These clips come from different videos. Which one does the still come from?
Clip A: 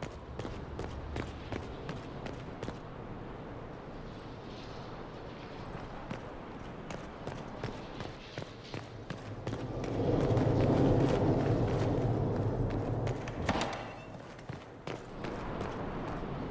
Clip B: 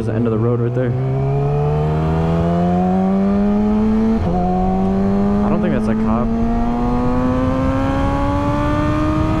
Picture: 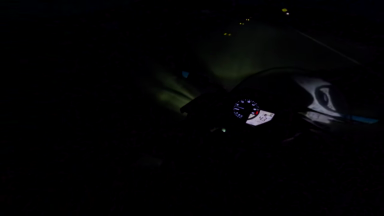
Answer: B